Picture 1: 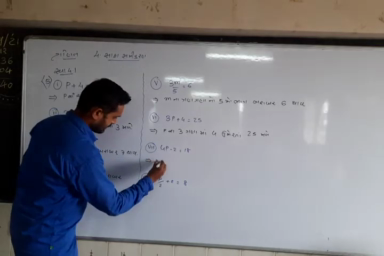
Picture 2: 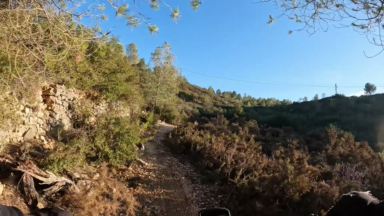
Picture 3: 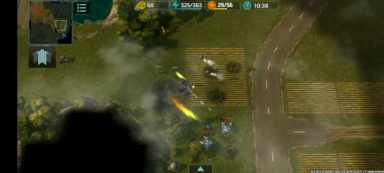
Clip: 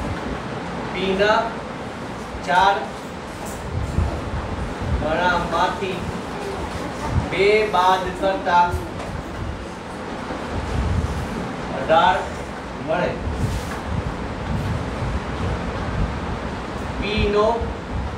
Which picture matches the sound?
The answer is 1